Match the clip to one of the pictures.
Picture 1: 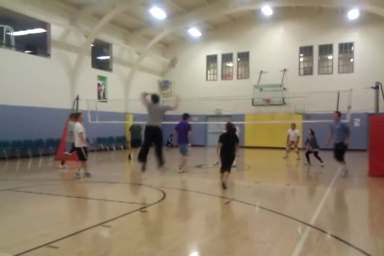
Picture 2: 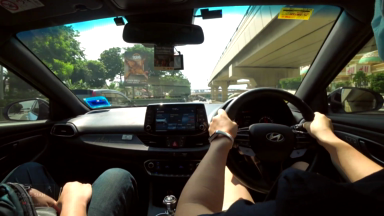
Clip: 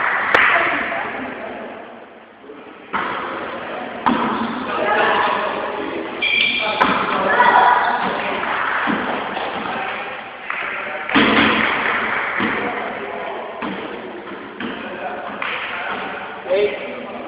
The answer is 1